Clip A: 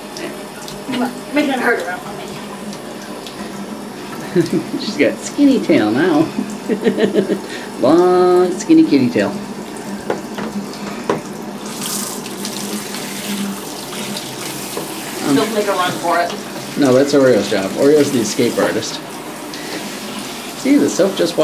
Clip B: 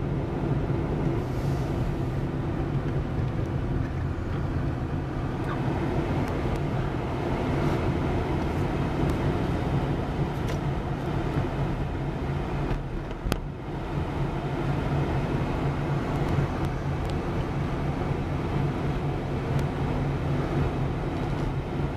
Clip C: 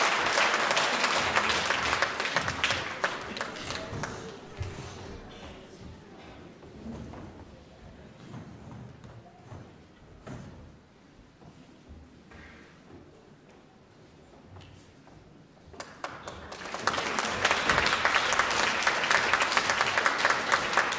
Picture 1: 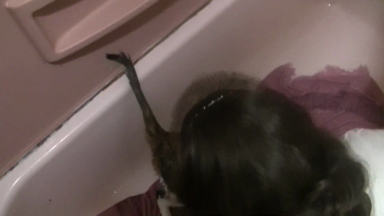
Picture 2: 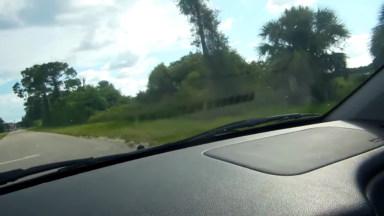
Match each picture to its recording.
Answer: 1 A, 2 B